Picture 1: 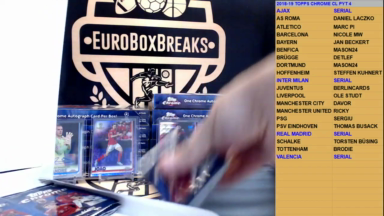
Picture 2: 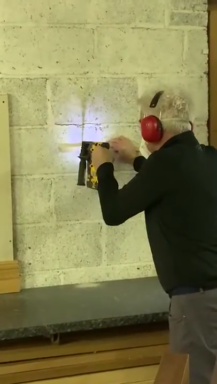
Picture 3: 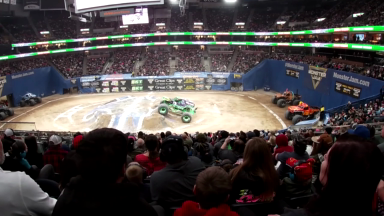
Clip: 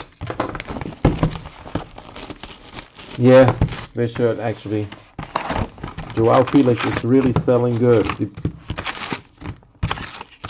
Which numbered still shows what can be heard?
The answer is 1